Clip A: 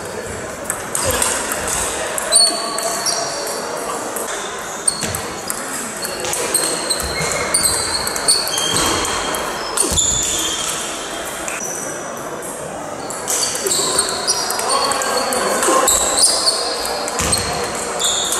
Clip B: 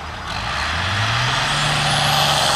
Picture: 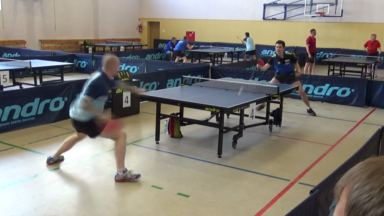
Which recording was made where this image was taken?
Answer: A